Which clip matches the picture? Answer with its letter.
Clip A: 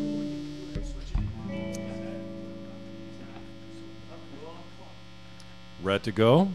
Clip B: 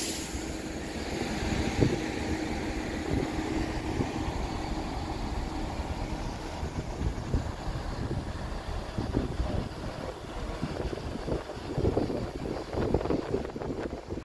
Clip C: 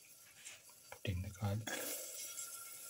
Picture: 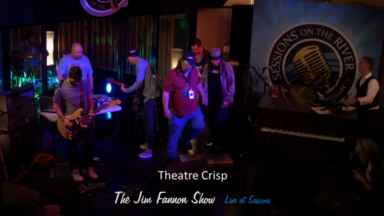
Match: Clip A